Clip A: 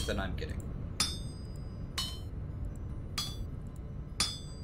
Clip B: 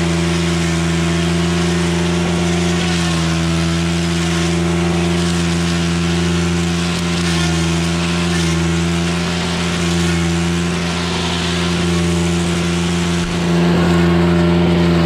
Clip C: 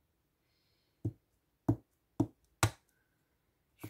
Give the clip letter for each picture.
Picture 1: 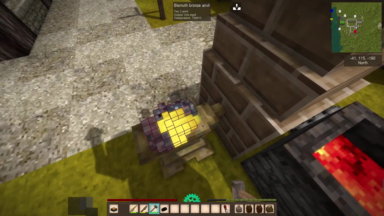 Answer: A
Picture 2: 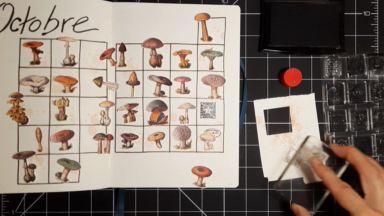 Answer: C